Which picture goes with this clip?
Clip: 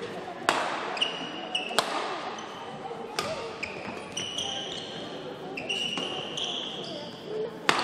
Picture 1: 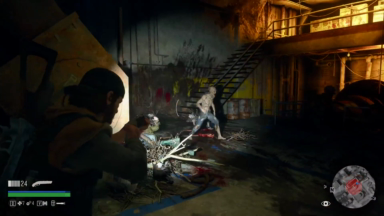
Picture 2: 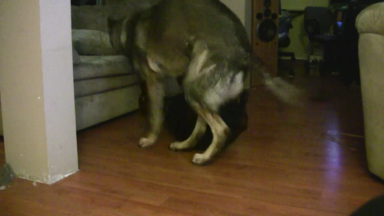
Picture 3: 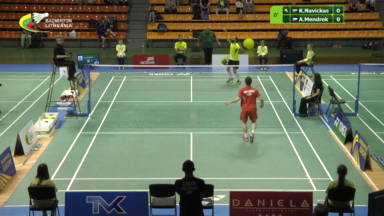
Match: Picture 3